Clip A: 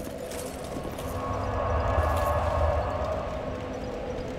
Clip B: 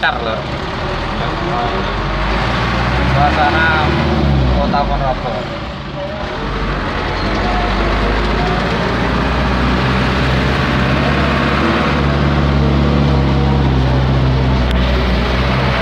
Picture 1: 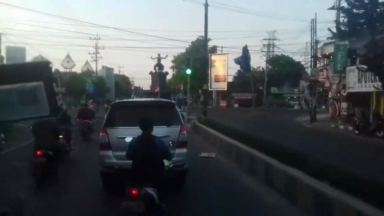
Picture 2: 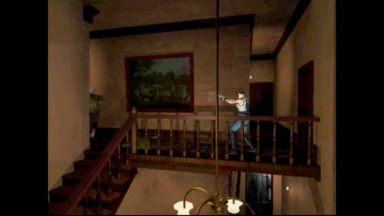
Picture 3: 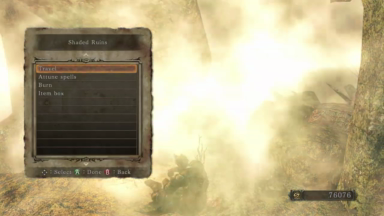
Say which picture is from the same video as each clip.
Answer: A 3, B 1